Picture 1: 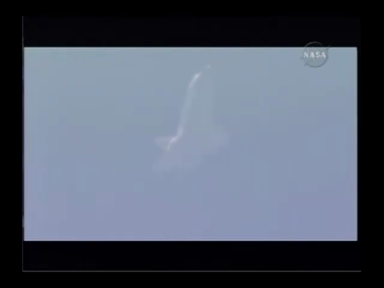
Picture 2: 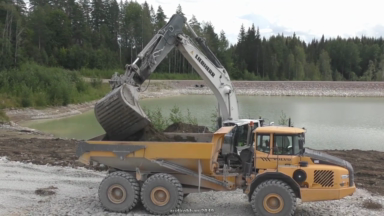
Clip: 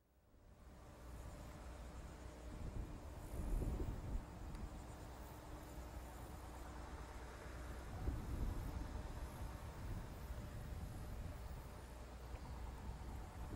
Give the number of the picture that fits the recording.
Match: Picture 1